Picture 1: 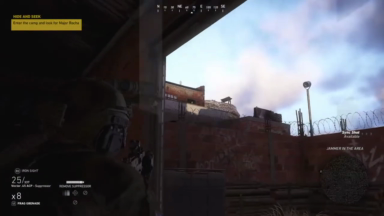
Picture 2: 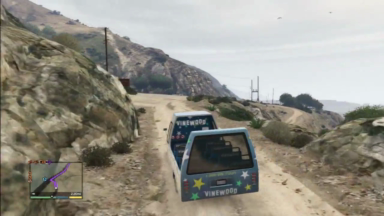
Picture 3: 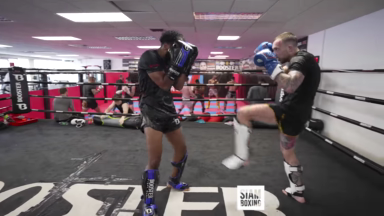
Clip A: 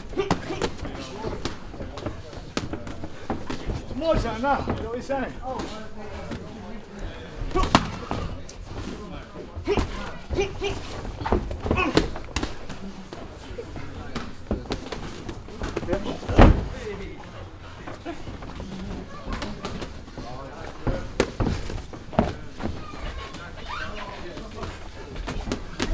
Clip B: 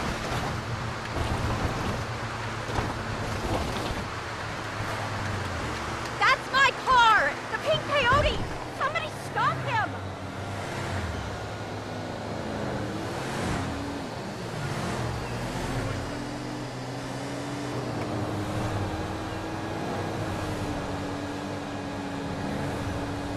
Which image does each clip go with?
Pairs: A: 3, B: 2